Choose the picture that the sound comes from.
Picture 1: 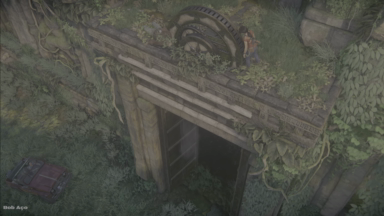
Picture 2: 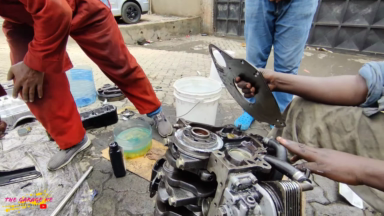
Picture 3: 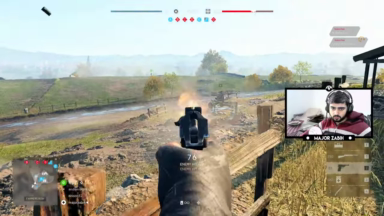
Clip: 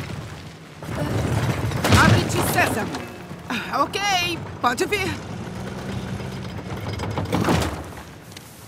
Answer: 1